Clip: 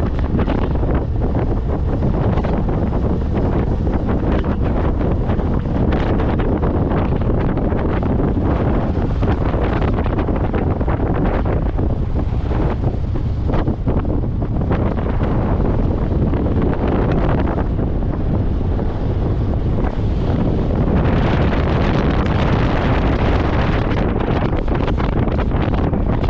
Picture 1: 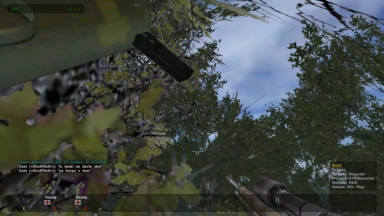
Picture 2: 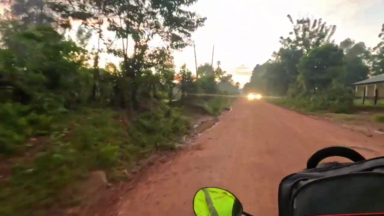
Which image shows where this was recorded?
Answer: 2